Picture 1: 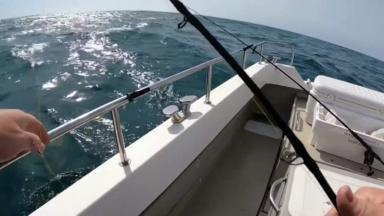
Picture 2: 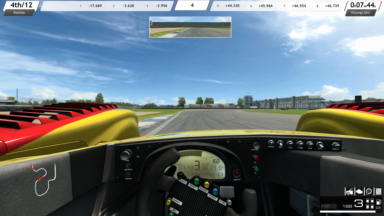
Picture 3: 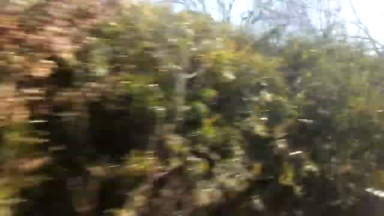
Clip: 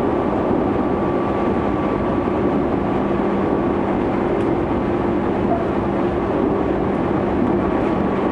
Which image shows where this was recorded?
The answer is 3